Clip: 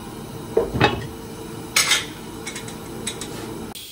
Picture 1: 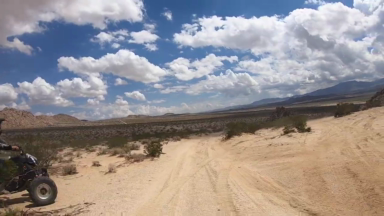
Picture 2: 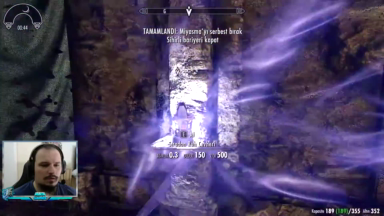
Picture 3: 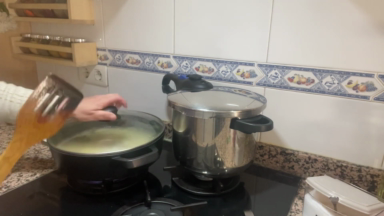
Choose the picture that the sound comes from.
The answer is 3